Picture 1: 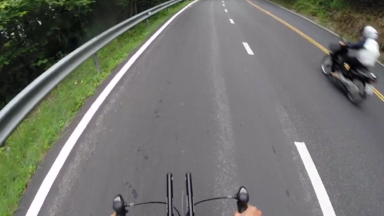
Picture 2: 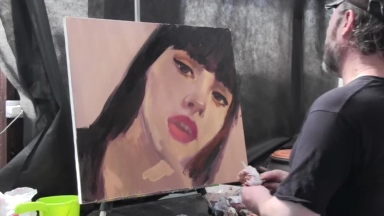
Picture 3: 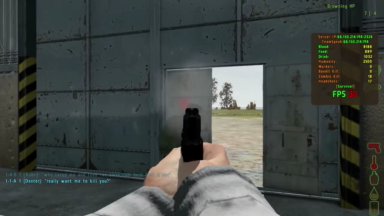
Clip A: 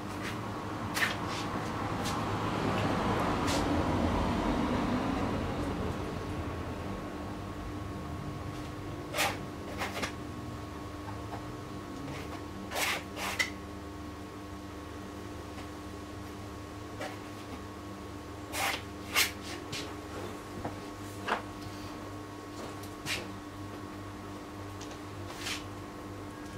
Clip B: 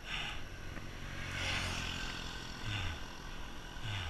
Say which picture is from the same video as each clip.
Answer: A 2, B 1